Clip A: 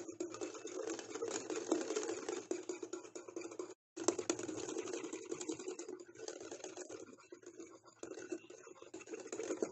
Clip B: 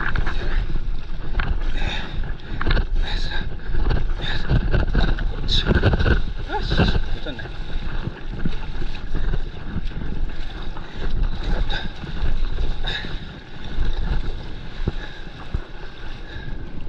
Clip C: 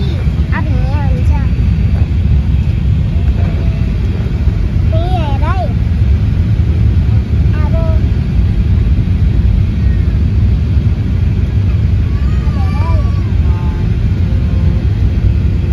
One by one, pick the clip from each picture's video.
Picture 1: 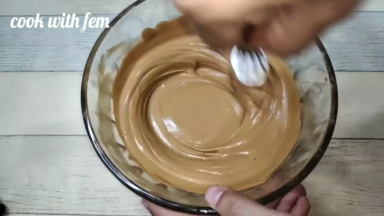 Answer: A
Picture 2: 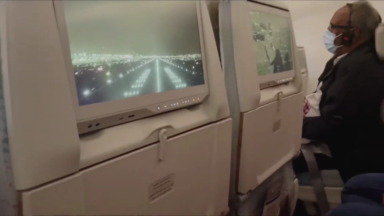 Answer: C